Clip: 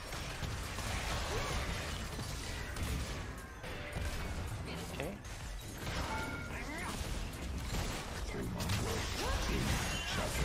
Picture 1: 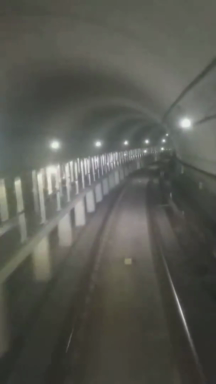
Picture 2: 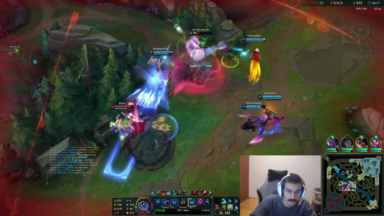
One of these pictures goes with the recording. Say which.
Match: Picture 2